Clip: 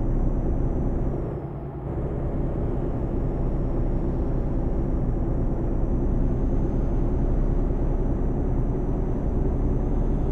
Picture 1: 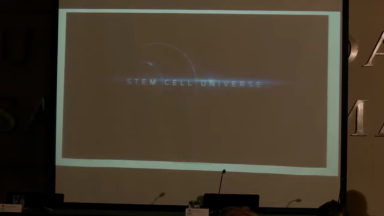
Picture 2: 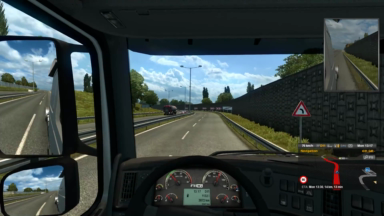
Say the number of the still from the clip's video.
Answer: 2